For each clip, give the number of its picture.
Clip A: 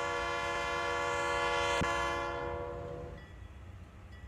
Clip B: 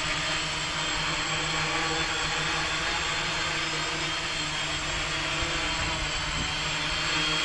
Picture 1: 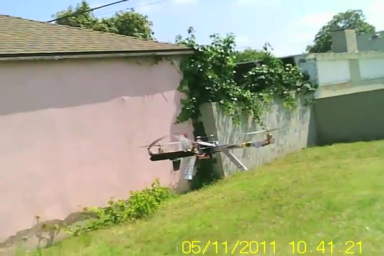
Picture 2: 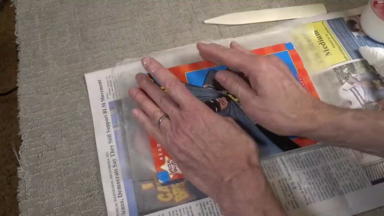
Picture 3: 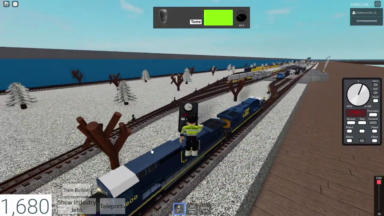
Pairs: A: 3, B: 1